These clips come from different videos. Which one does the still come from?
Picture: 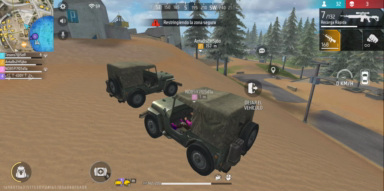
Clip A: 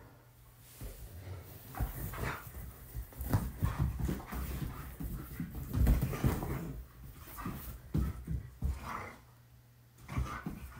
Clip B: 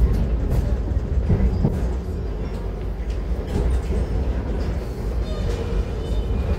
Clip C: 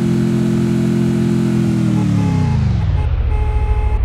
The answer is C